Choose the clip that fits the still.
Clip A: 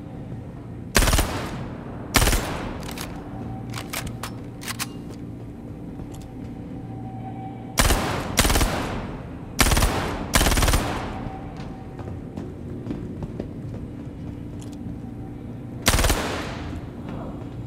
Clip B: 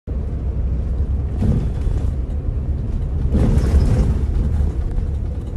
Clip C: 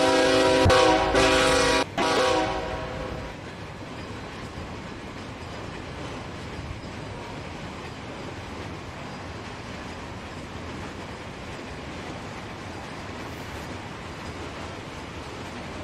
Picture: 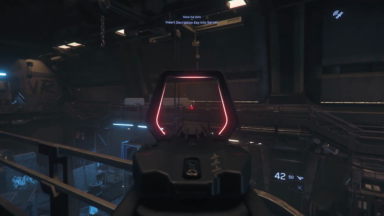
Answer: A